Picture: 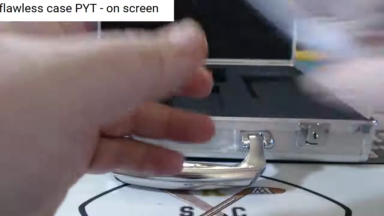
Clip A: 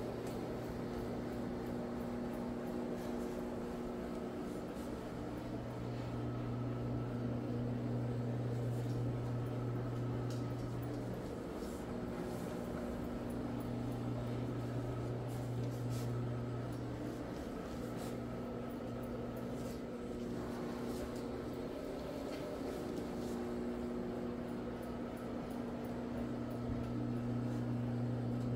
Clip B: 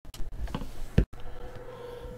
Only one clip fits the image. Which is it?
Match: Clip B